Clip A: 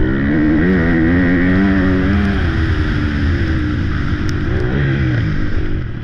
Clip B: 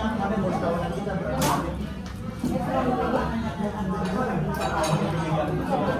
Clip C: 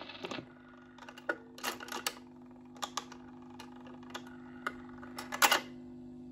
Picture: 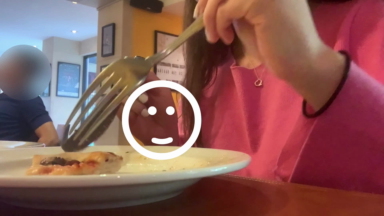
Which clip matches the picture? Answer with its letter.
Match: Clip B